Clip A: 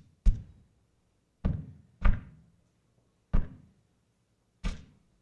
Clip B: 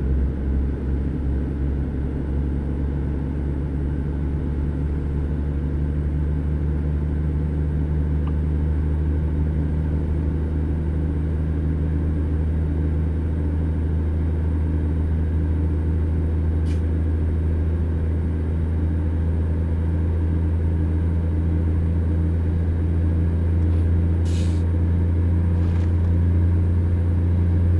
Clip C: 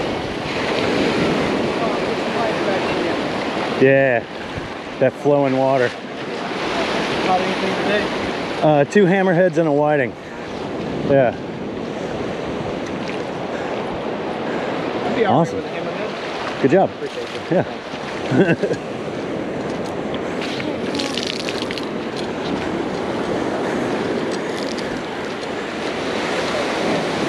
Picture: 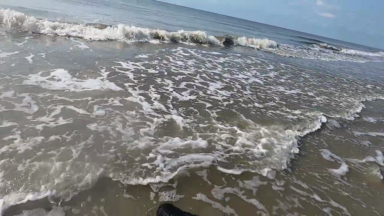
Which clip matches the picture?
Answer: C